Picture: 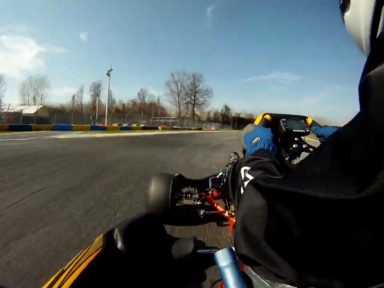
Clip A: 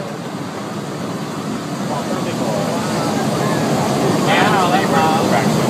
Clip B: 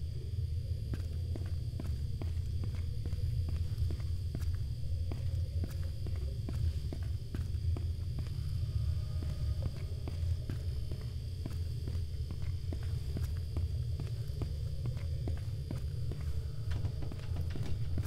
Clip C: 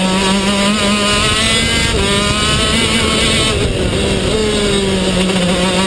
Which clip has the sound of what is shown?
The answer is C